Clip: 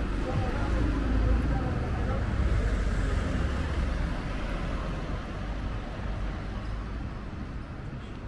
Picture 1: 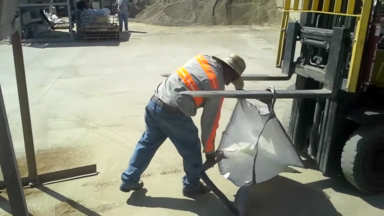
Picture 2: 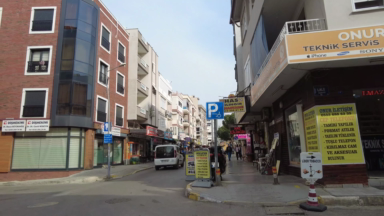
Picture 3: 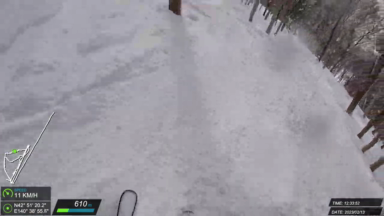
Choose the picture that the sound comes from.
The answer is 2